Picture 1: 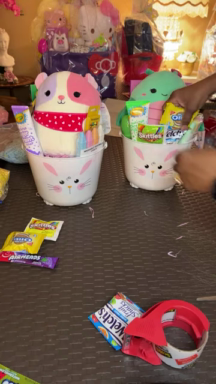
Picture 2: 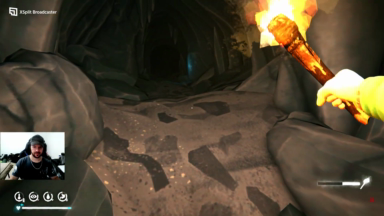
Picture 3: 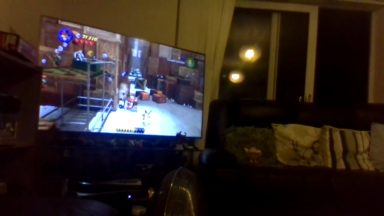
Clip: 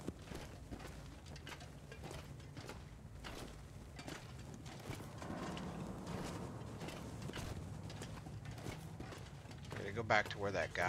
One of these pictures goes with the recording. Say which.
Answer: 2